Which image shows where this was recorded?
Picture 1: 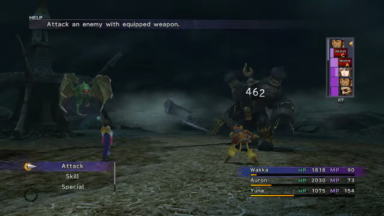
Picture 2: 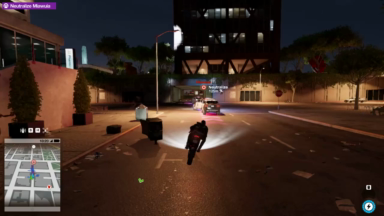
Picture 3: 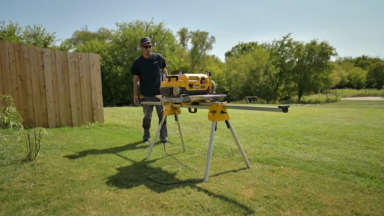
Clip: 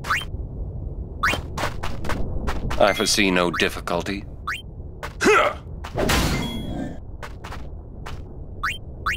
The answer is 1